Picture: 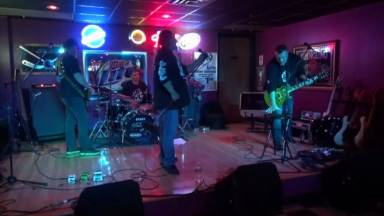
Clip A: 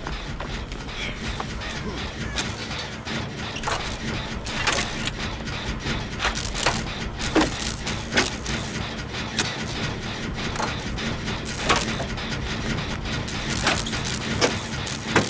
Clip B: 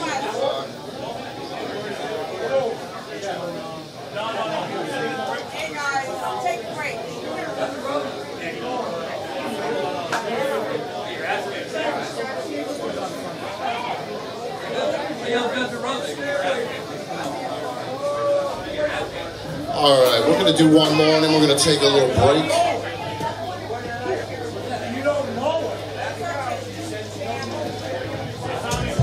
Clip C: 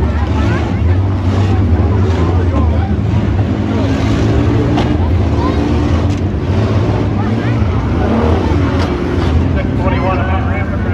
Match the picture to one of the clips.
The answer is B